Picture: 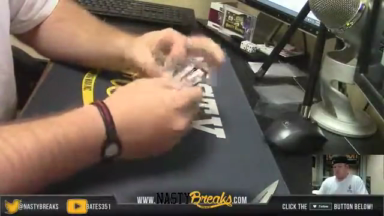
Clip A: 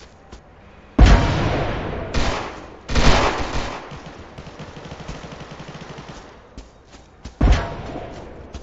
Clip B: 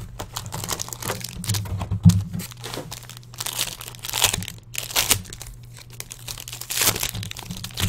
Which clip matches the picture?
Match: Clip B